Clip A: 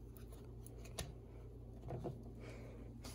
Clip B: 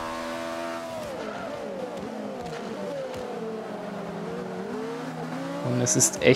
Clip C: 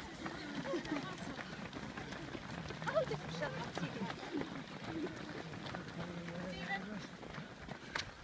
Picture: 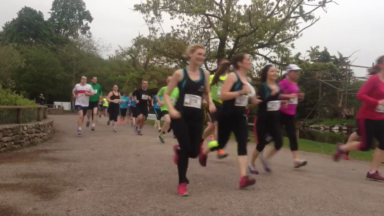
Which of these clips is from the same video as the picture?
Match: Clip C